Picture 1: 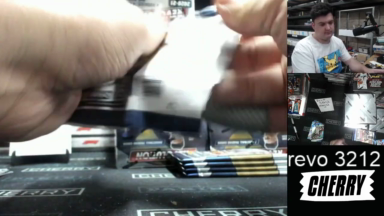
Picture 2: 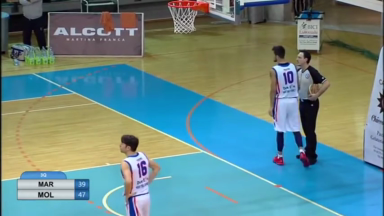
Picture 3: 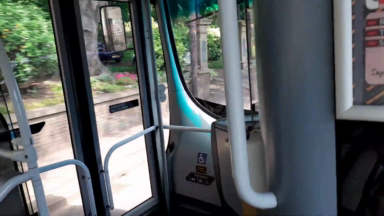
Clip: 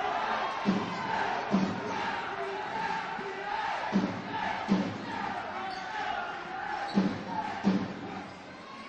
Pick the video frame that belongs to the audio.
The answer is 2